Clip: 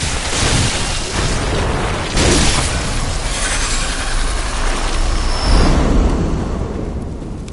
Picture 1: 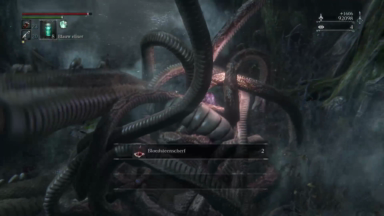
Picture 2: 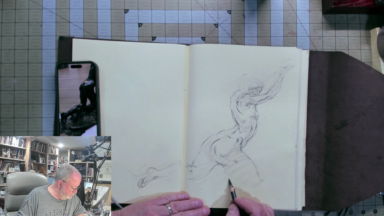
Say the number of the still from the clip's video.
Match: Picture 1